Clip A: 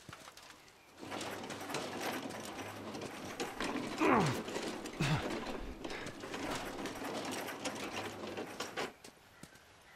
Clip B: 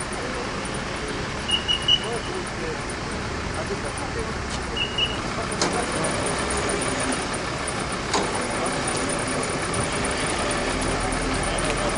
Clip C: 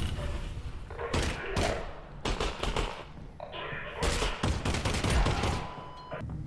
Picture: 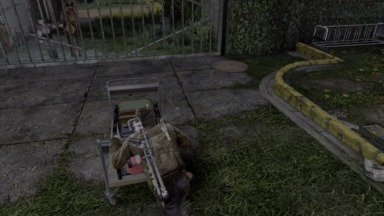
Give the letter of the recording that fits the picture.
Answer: A